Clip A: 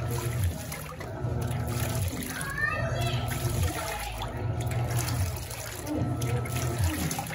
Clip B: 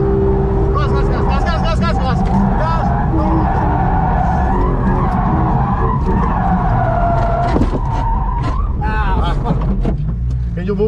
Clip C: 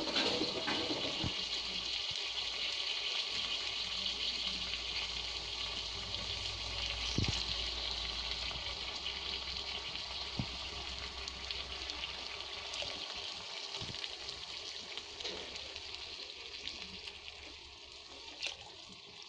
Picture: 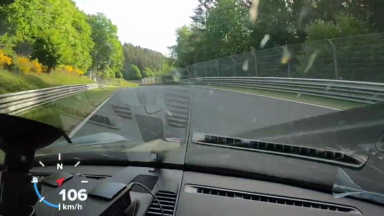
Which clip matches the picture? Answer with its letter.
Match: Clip B